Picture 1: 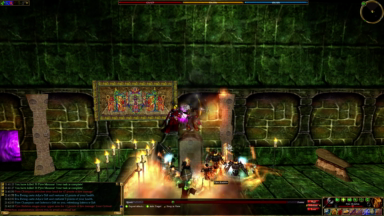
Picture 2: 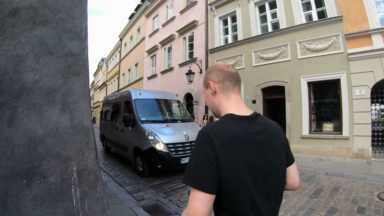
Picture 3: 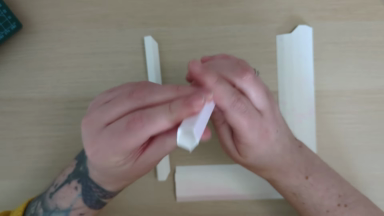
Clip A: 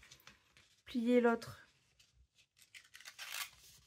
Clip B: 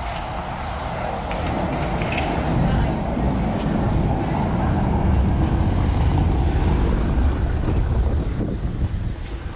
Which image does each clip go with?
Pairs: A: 3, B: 2